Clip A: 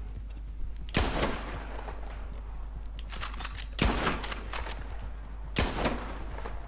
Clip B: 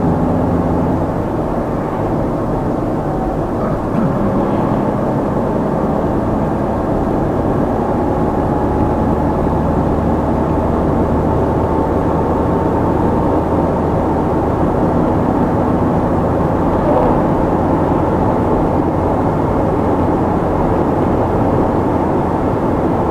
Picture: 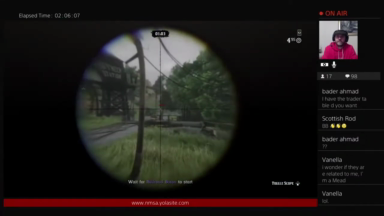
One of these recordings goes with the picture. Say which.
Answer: A